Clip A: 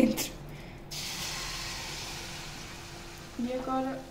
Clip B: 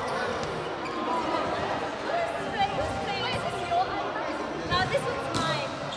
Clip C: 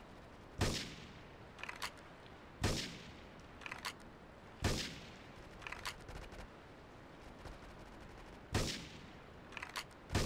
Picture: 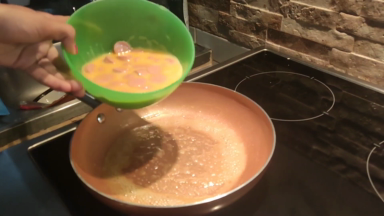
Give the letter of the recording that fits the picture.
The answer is A